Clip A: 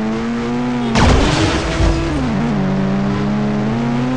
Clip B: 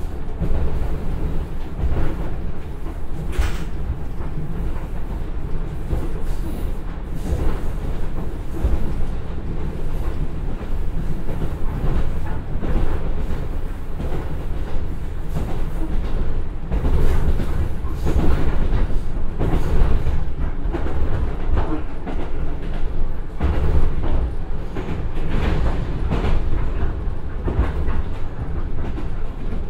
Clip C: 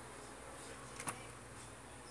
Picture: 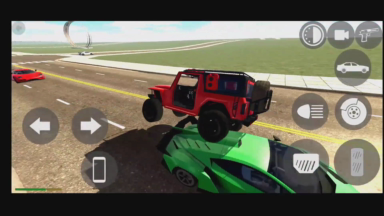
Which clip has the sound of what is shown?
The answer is A